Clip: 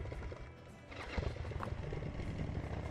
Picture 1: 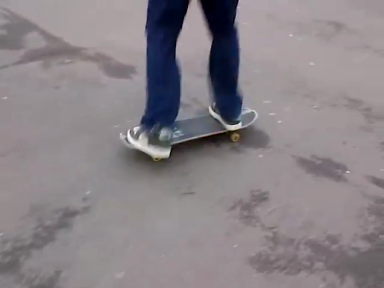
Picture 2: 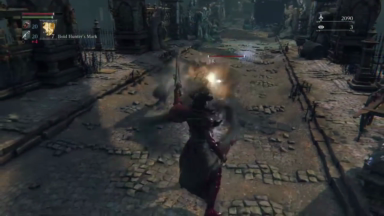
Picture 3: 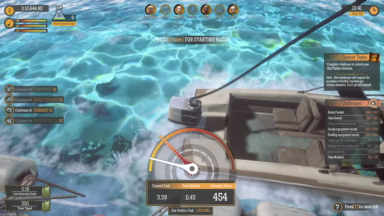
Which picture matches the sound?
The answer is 3